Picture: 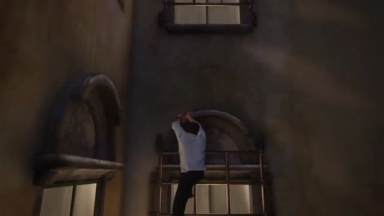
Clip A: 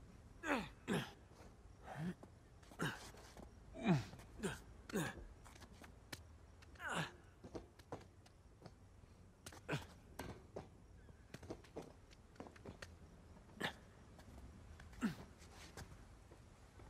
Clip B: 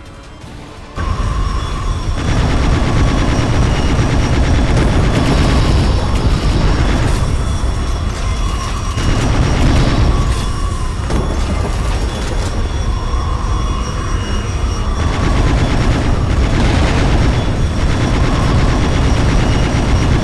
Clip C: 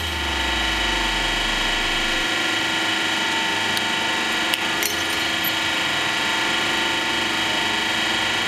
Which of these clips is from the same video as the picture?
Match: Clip A